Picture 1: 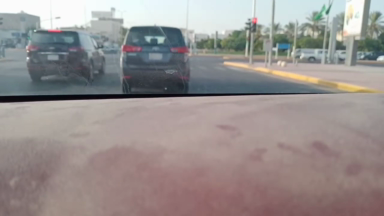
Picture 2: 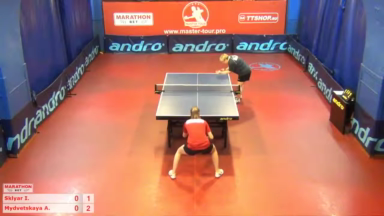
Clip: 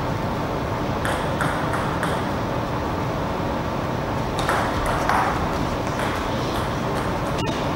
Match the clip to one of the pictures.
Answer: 2